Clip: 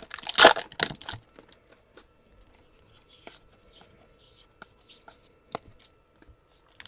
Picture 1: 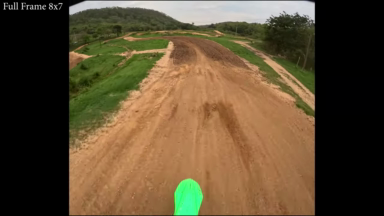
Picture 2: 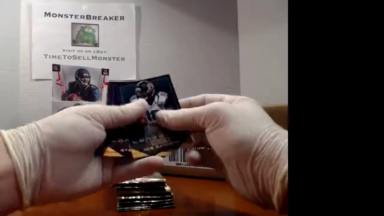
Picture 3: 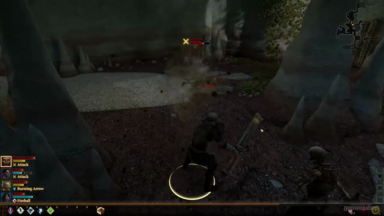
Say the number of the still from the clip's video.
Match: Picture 2